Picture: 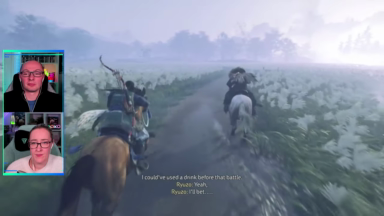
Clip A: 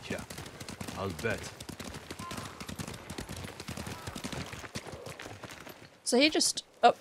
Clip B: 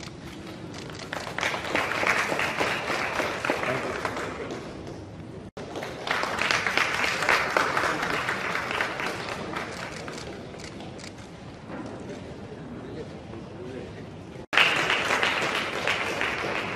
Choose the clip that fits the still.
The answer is A